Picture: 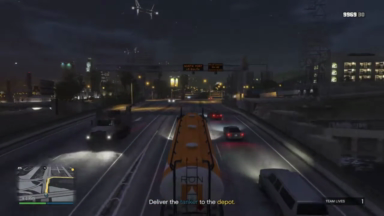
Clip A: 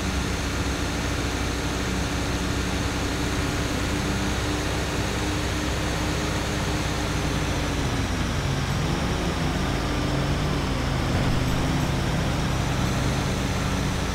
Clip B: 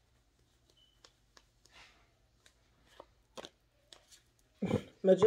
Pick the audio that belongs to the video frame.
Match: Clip A